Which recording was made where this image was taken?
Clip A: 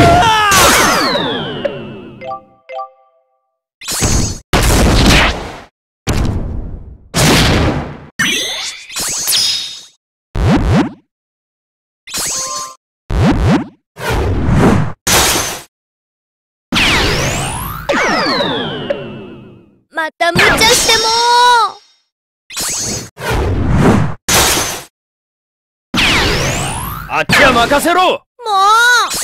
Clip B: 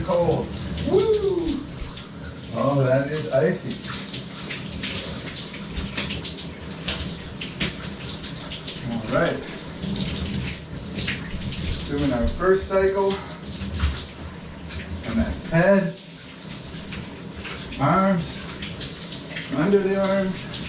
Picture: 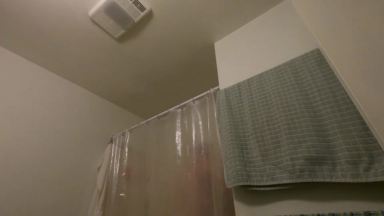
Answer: B